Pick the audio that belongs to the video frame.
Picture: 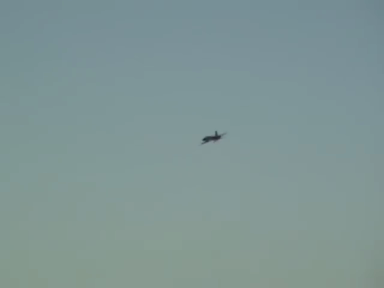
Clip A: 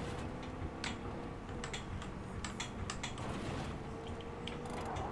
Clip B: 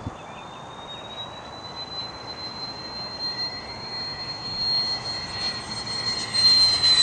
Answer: B